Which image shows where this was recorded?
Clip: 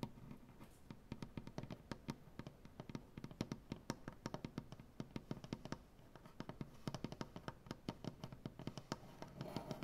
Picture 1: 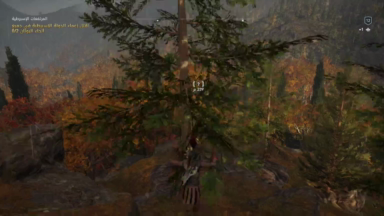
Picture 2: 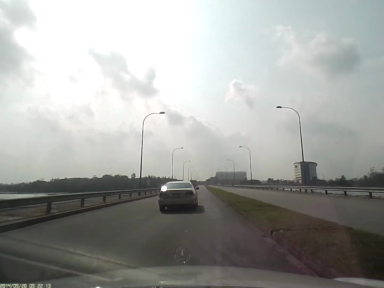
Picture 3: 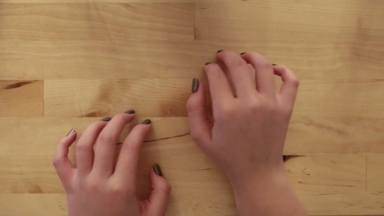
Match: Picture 3